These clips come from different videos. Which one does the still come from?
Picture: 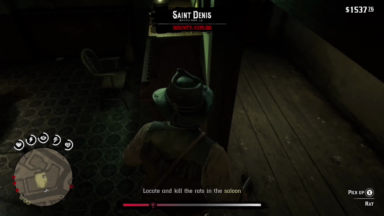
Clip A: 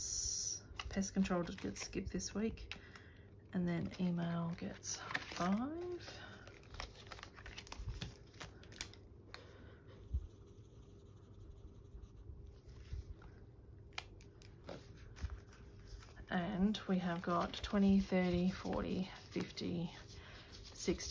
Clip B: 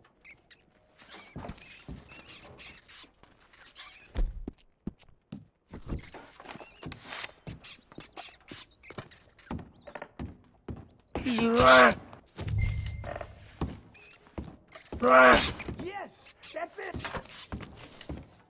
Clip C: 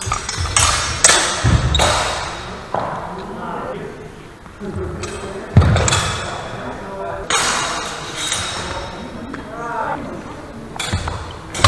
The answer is B